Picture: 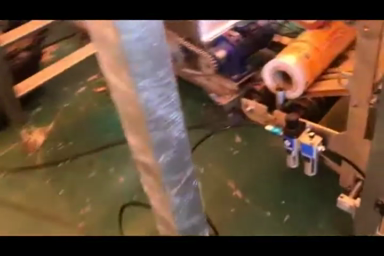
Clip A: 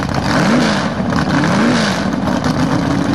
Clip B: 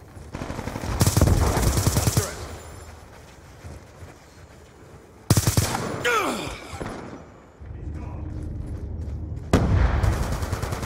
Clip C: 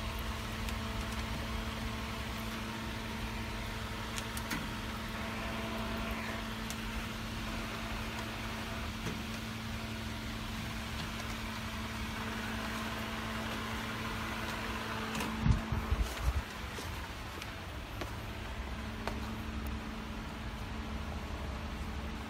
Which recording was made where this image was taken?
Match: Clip C